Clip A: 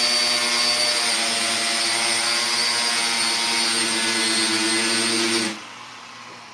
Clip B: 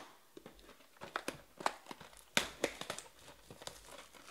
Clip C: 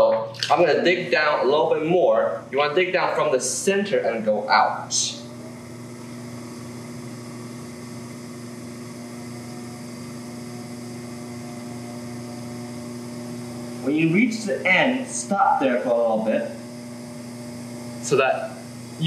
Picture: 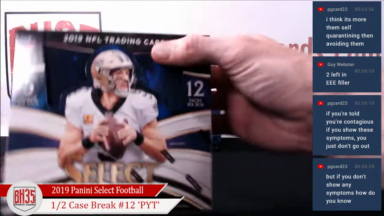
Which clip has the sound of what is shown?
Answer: B